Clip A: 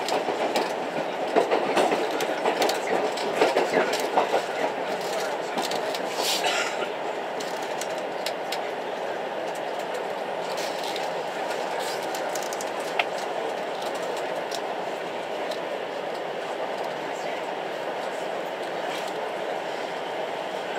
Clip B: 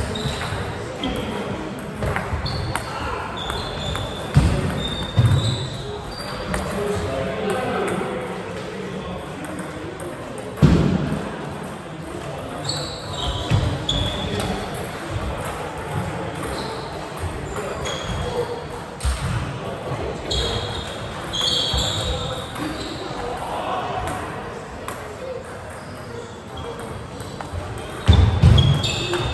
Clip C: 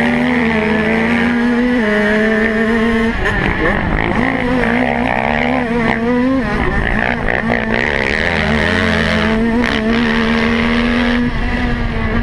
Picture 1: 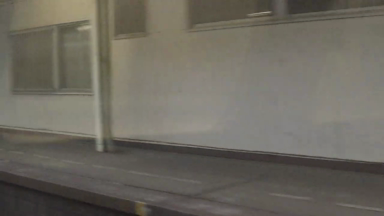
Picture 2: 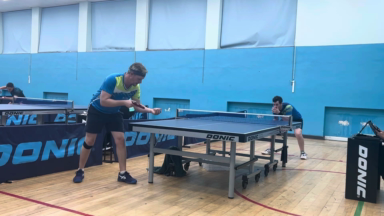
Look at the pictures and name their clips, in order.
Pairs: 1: A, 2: B